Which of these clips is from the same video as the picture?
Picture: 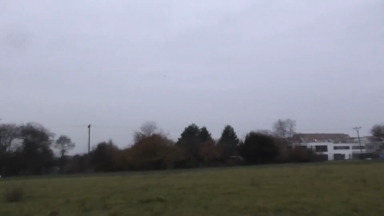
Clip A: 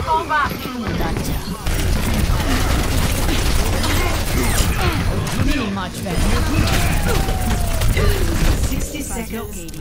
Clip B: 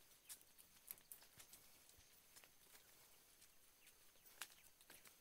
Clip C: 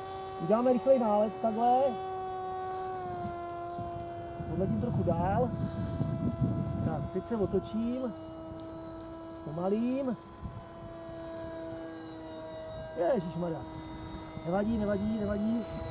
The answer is C